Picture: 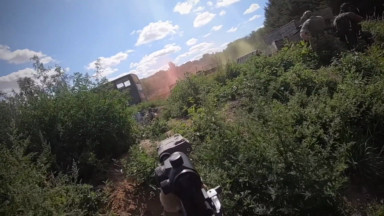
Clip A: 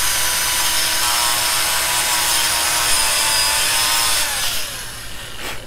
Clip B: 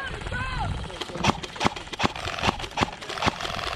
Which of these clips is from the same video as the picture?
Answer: B